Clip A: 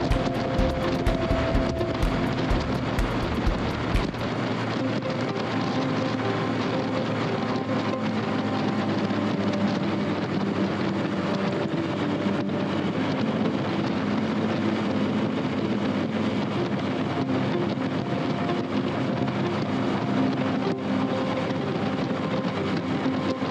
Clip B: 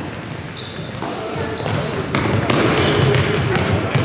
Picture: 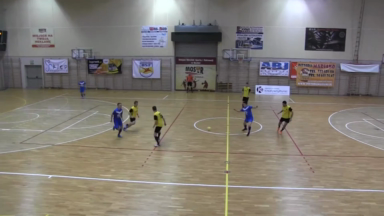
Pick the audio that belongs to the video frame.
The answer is B